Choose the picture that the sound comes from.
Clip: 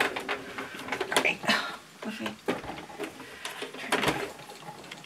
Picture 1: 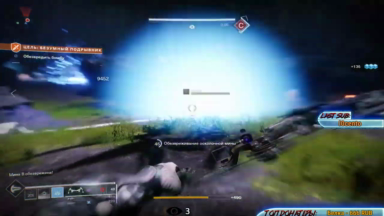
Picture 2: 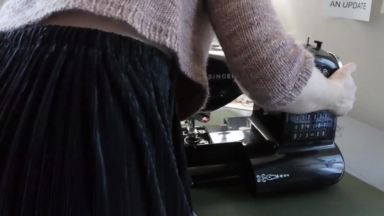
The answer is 2